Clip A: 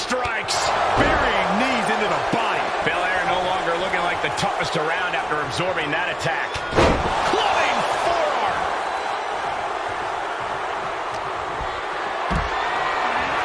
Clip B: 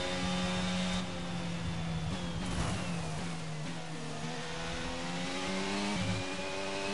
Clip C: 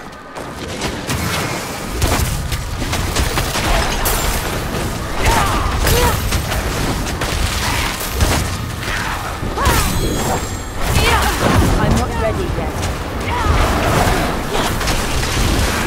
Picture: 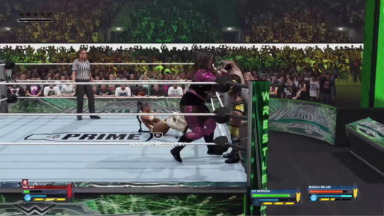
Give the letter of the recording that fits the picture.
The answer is A